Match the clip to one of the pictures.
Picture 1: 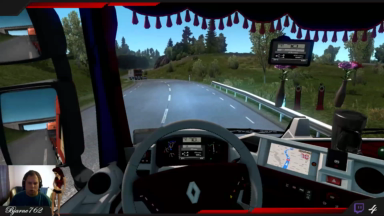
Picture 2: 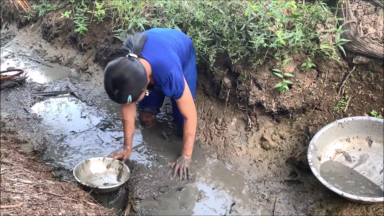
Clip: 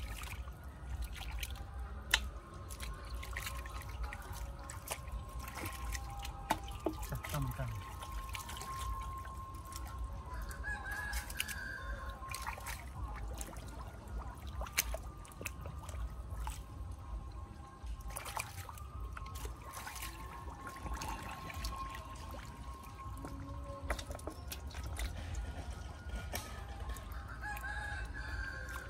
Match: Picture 2